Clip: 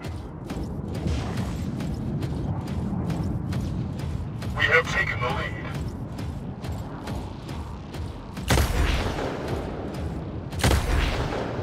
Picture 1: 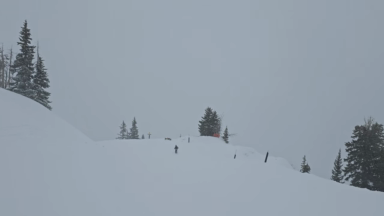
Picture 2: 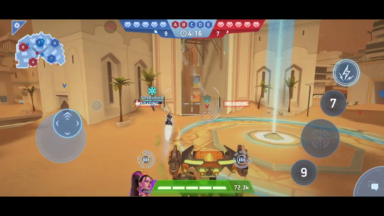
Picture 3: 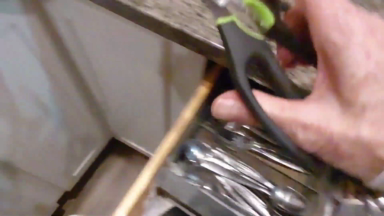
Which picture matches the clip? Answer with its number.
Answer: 2